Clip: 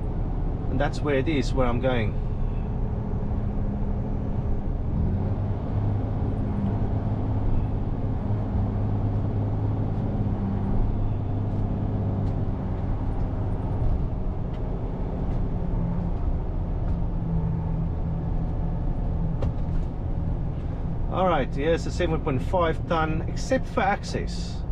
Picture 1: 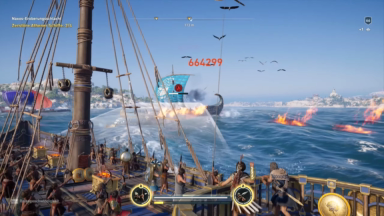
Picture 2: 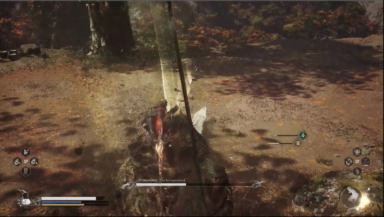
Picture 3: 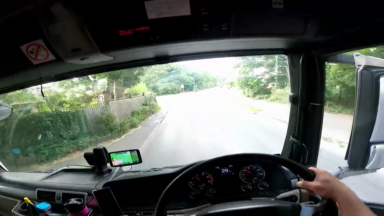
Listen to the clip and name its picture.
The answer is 3